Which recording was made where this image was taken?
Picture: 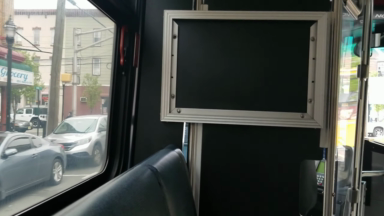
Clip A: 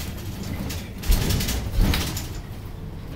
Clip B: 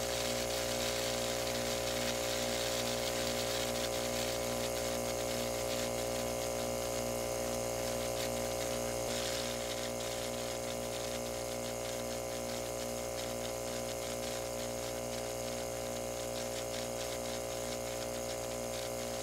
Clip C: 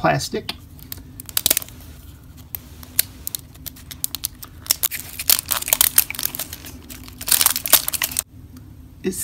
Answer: A